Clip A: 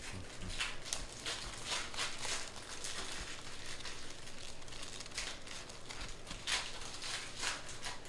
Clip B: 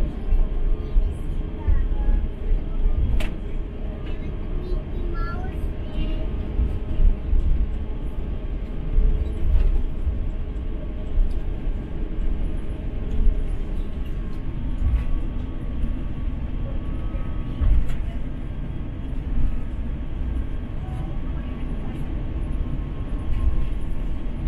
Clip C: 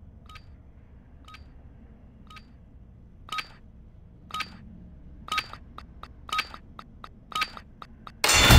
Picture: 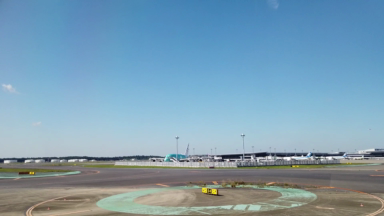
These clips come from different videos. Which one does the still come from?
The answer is B